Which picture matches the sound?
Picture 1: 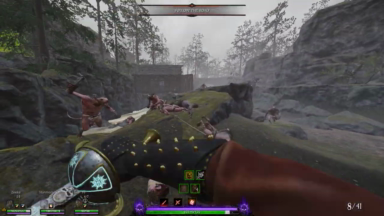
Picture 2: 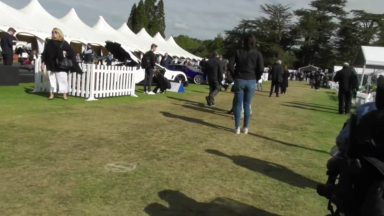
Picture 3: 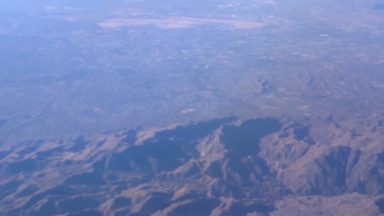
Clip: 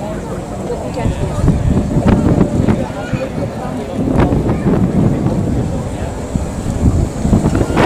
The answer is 2